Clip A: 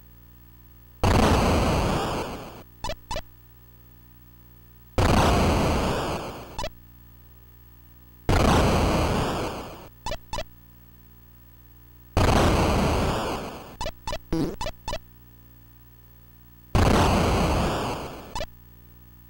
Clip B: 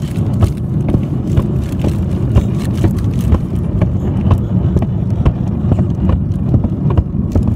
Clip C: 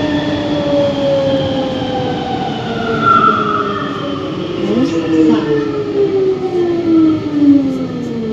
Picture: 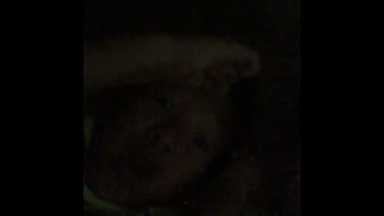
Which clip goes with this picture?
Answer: B